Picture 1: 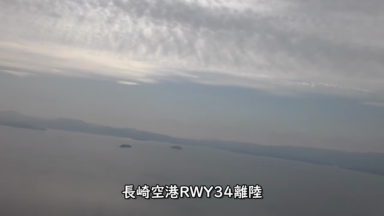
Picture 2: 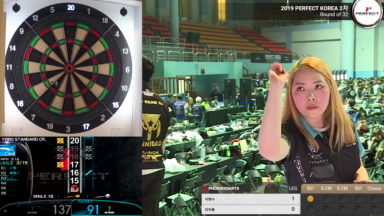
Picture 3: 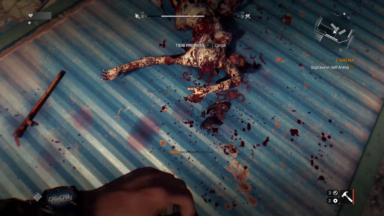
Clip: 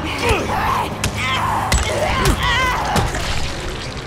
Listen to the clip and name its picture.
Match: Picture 3